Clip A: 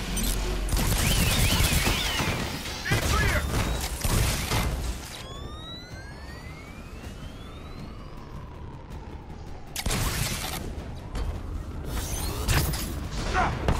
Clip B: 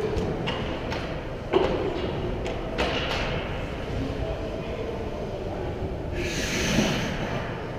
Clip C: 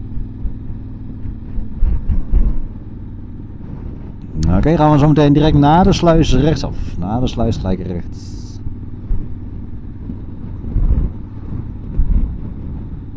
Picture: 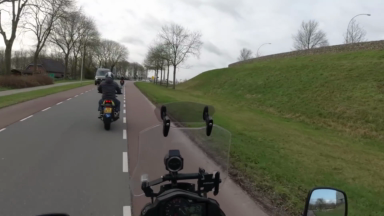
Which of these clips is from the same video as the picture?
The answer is C